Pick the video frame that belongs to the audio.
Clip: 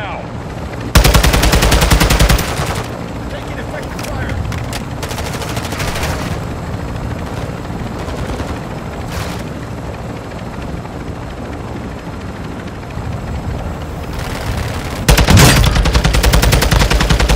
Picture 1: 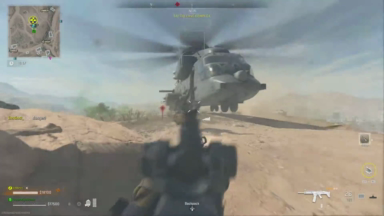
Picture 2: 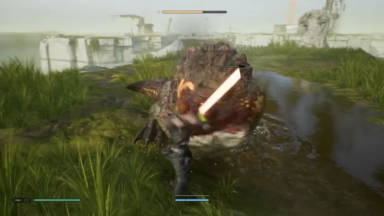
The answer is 1